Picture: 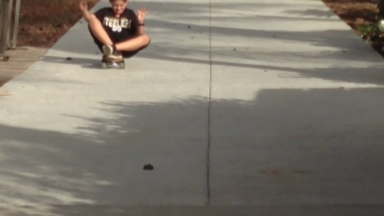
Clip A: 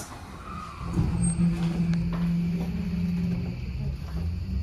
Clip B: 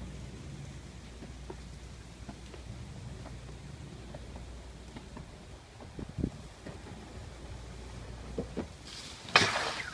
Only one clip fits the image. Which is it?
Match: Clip B